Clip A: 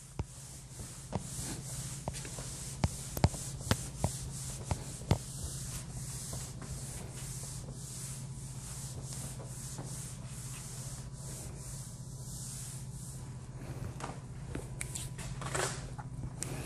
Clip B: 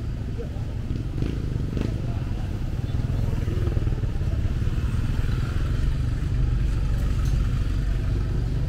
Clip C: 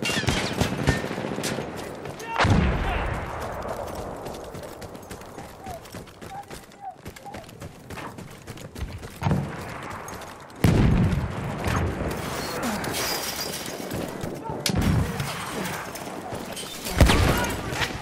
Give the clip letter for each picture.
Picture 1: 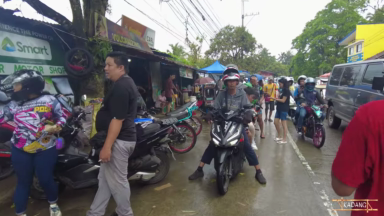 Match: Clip B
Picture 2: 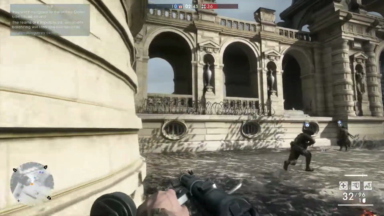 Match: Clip C